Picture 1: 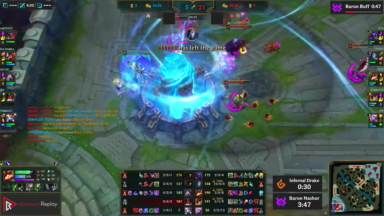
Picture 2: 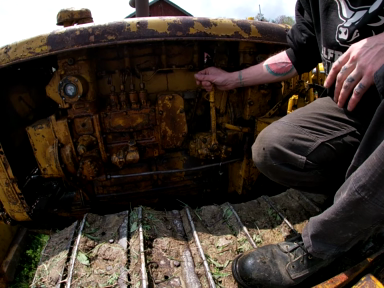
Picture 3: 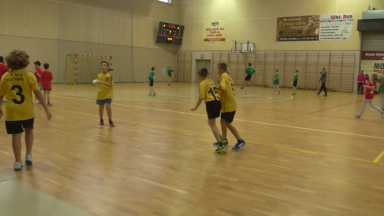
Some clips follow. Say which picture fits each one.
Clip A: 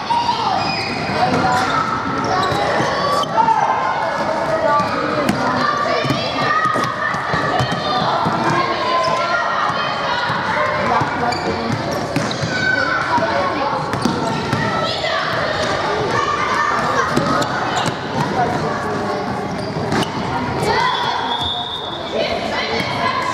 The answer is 3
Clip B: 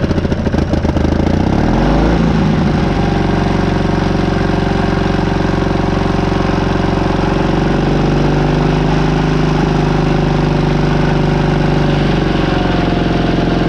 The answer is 2